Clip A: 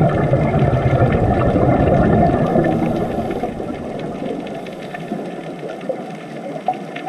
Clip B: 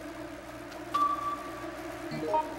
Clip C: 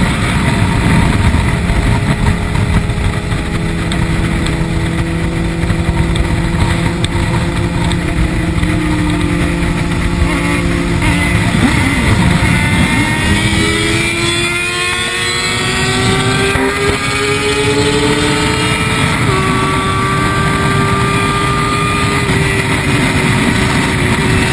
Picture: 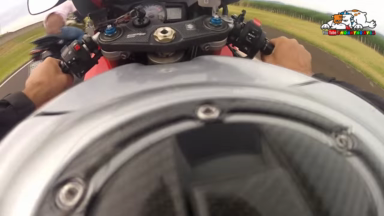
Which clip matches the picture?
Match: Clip C